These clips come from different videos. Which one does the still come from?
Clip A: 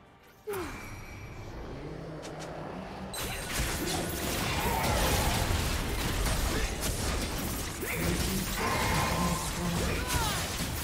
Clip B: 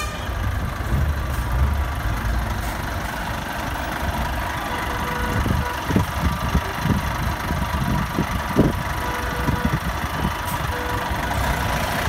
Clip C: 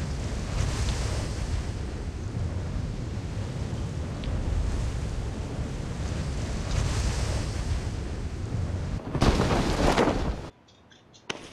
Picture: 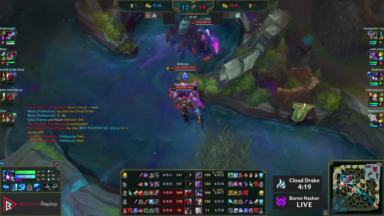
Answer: A